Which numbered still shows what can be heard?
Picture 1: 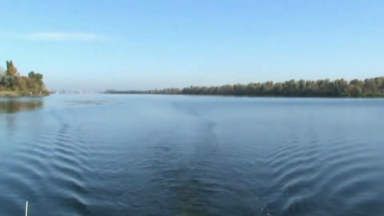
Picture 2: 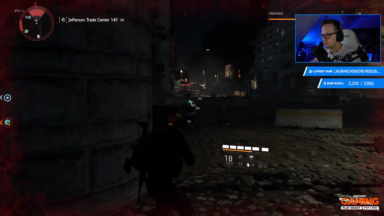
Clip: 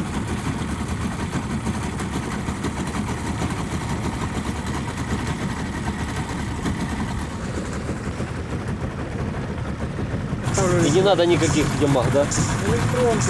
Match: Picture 1